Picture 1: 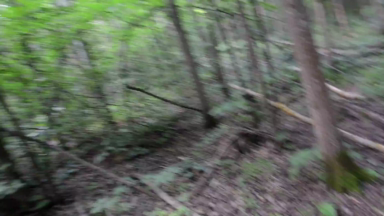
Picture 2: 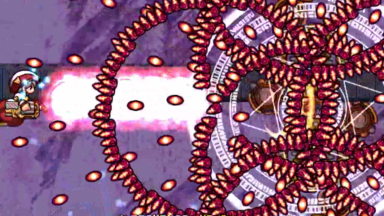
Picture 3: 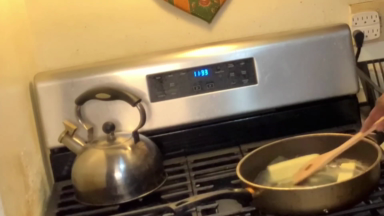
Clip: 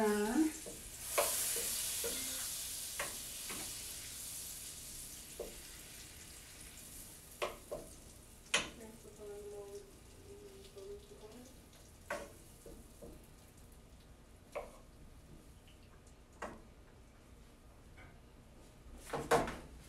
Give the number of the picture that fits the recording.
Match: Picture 3